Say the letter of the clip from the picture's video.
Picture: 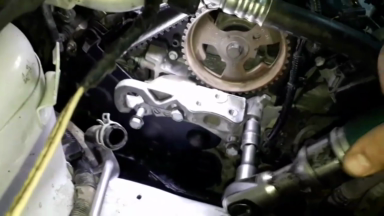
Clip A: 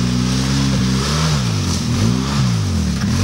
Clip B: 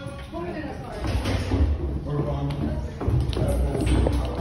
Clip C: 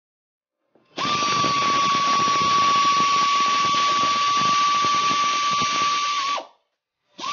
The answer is C